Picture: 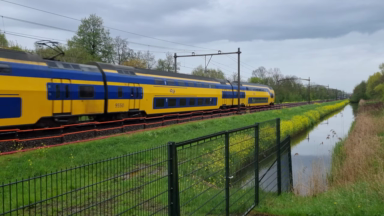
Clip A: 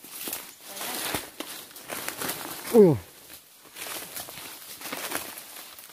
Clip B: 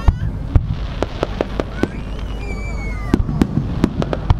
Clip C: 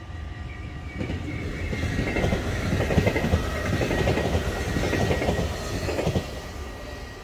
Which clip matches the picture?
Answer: C